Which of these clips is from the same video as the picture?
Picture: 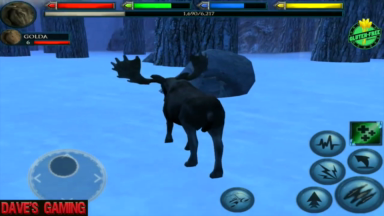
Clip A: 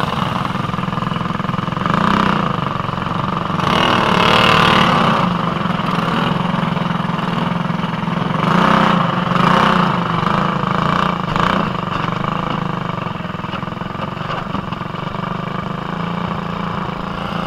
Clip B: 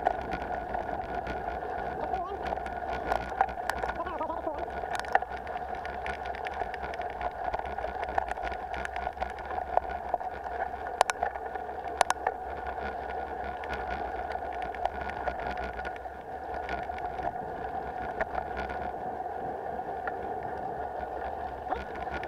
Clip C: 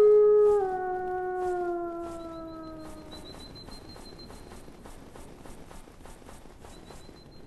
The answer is C